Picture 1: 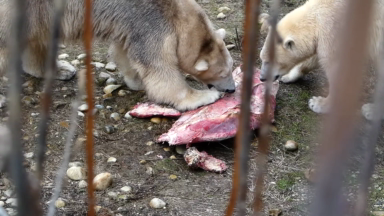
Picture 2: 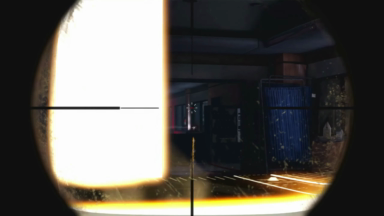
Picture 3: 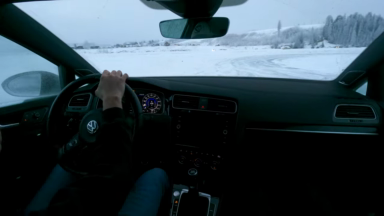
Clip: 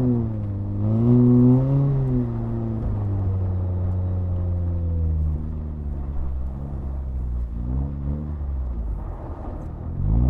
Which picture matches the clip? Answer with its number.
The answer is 3